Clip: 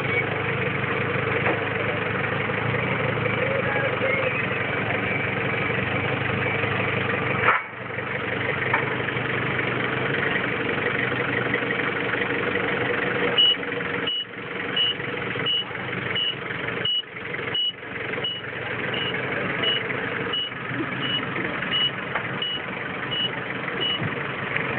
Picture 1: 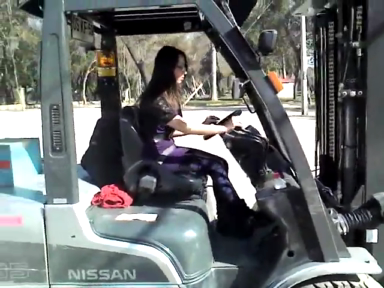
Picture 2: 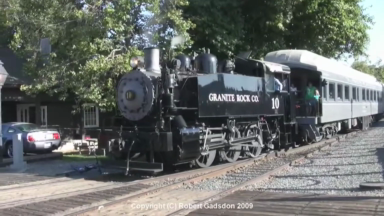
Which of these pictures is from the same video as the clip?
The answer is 1